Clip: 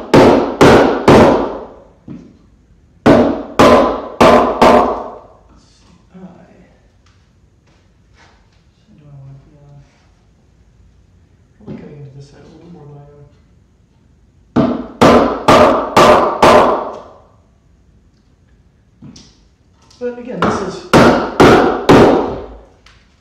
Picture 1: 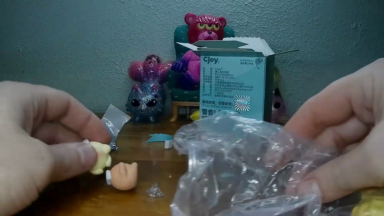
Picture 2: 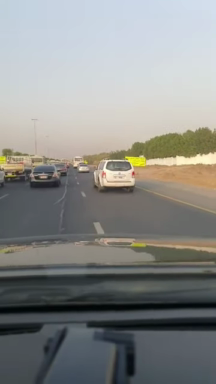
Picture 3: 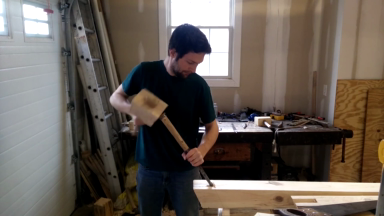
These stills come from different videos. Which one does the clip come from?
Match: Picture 3